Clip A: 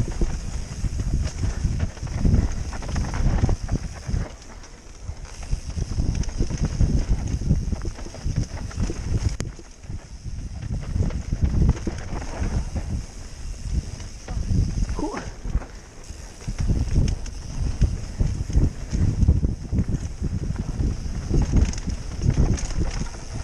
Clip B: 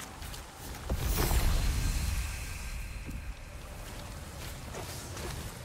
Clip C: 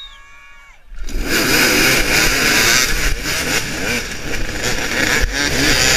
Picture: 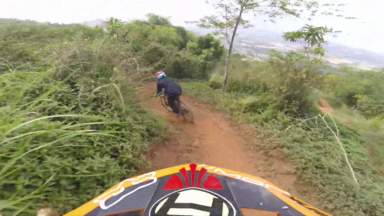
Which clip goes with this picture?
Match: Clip A